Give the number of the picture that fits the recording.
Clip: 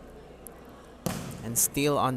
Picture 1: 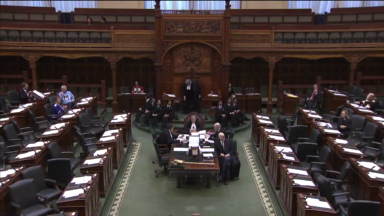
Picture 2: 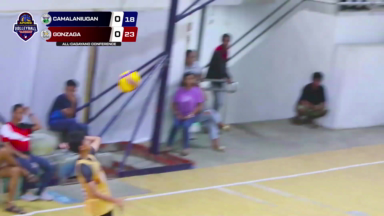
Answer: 2